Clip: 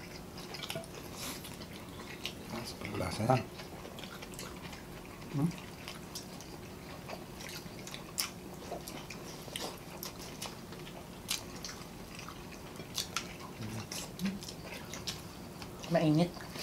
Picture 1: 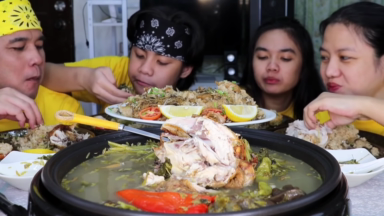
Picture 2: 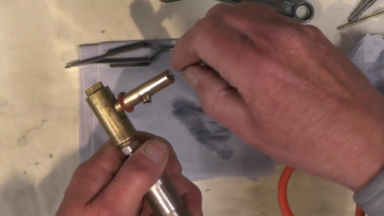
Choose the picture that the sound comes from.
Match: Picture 1